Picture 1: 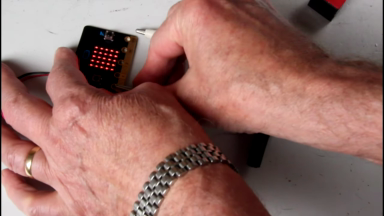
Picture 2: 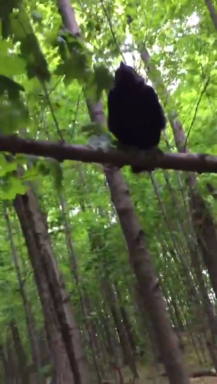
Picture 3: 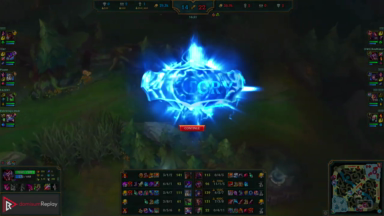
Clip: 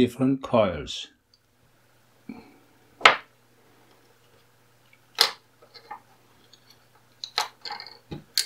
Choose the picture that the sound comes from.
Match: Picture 1